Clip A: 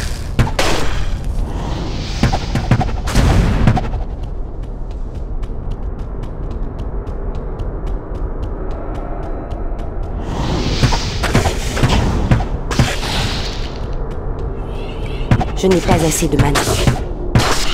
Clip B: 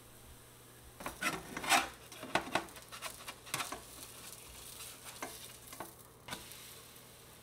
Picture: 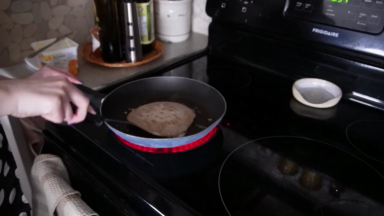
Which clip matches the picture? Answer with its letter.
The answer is B